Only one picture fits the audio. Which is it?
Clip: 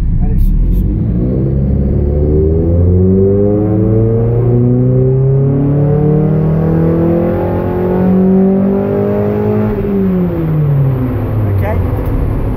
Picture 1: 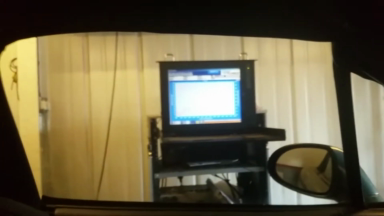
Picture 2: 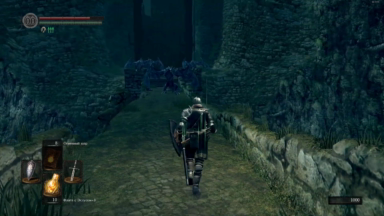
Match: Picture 1